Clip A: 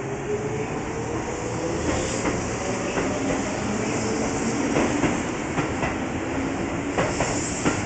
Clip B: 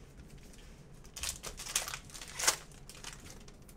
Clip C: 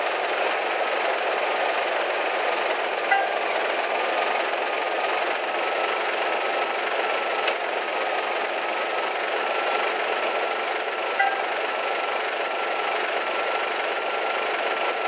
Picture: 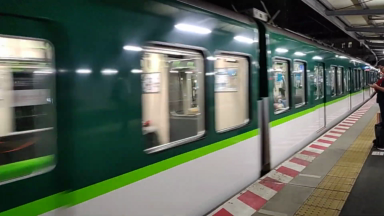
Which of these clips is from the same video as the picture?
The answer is A